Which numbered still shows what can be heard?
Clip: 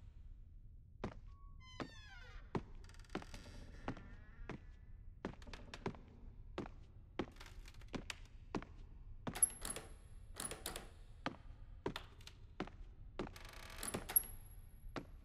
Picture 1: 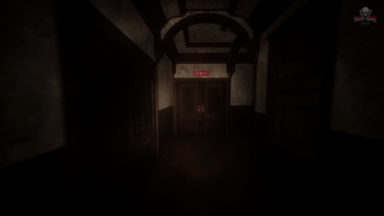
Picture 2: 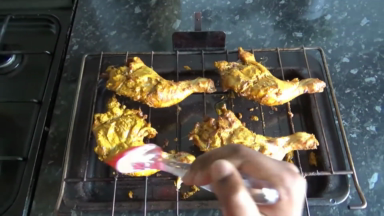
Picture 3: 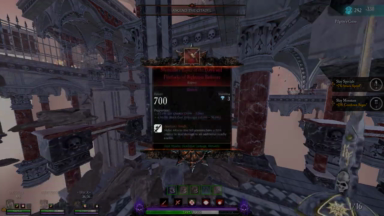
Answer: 1